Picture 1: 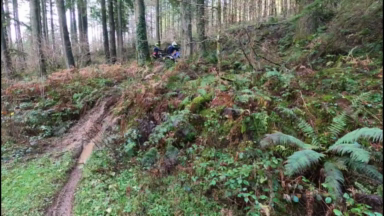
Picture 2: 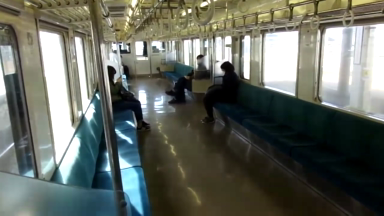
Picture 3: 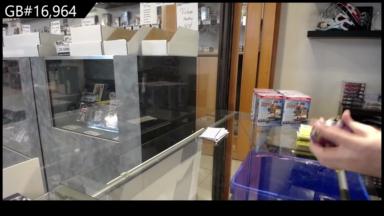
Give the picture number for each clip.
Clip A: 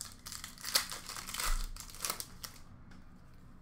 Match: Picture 3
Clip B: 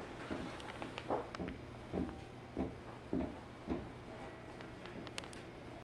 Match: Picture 2